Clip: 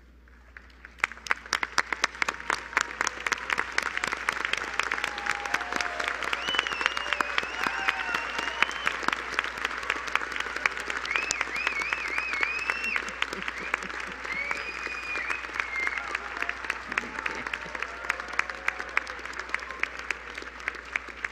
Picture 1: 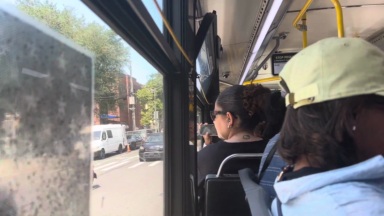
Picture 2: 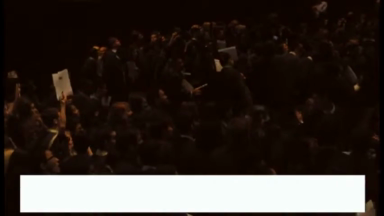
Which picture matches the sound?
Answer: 2